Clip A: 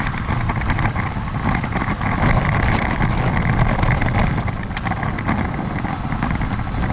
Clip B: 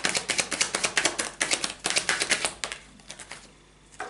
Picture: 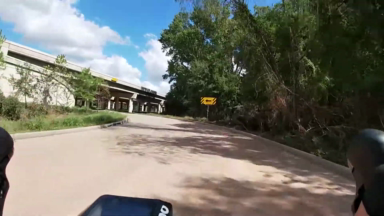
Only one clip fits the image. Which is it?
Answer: A